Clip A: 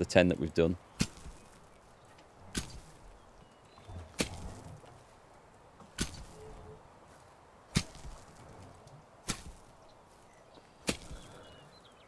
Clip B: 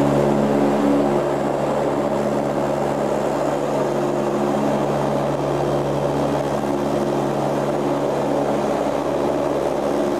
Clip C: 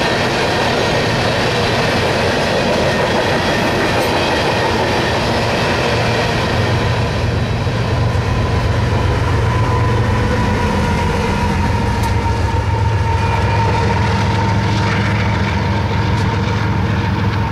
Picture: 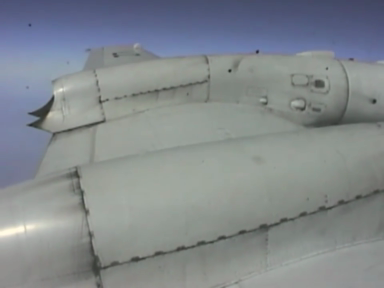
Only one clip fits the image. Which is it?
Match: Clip B